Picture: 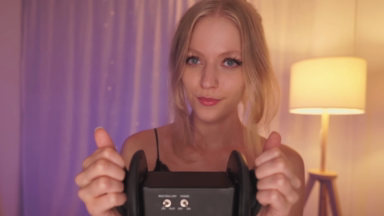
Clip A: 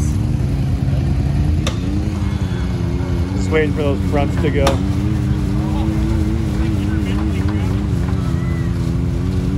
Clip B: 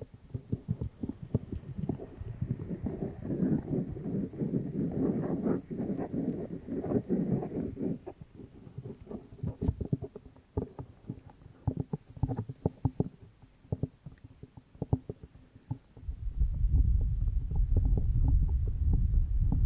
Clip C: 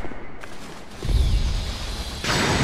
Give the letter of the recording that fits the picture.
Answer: B